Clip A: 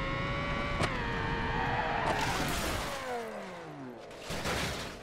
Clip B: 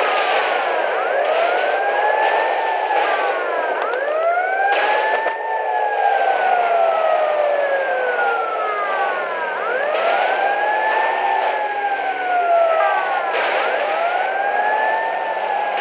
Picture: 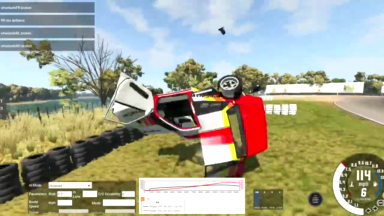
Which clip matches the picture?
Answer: A